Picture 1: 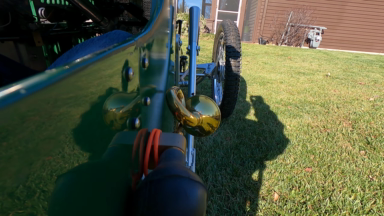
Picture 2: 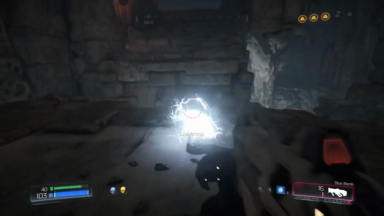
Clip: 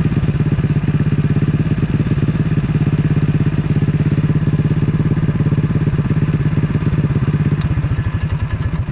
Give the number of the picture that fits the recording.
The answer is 1